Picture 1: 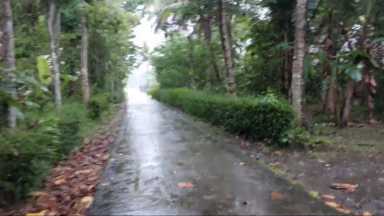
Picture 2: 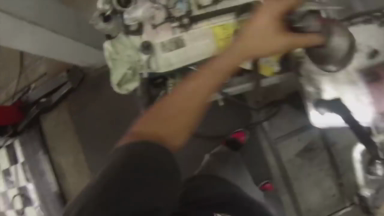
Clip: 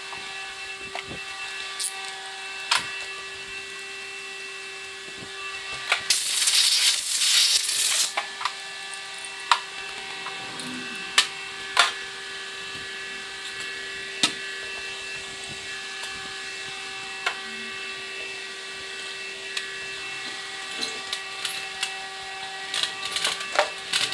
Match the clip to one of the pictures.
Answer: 2